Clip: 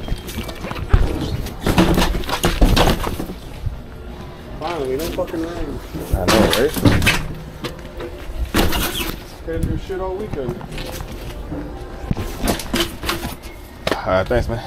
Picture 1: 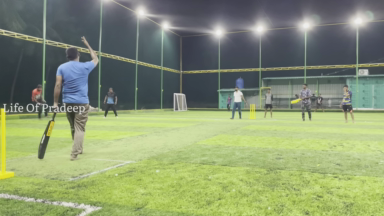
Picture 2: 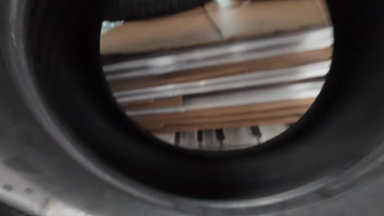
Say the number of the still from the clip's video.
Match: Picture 2